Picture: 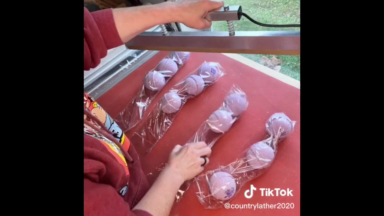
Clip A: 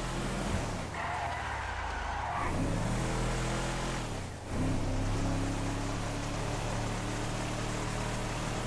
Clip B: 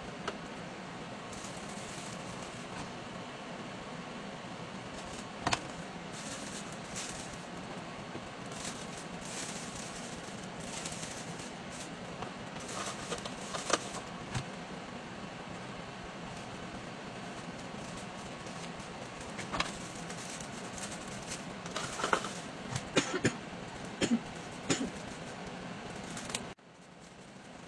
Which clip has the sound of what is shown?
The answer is B